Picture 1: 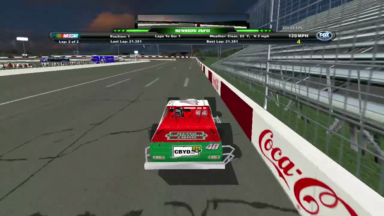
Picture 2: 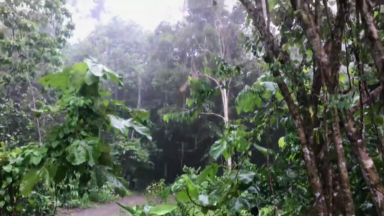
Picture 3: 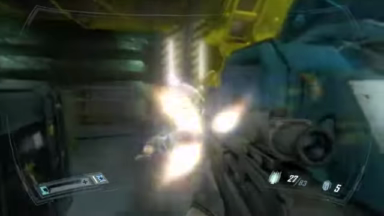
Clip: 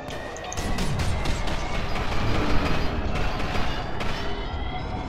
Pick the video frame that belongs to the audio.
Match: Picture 3